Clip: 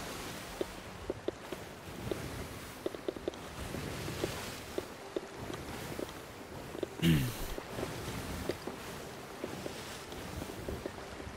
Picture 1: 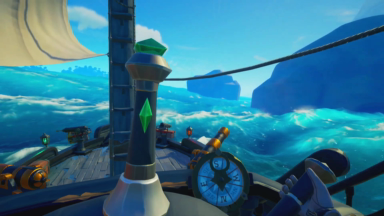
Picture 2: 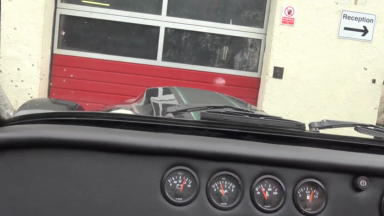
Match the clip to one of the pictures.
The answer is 1